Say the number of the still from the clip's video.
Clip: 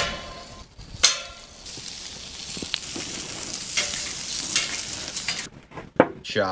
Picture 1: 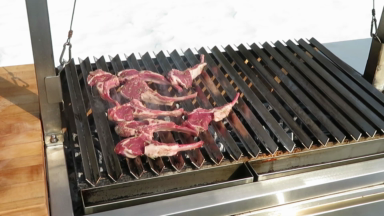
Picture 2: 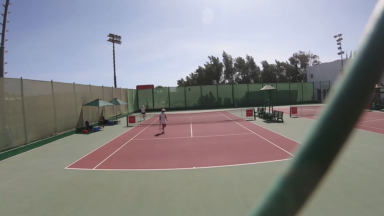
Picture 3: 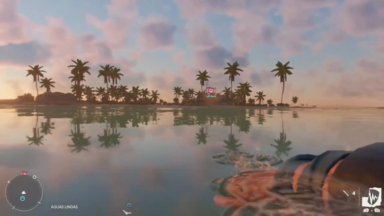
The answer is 1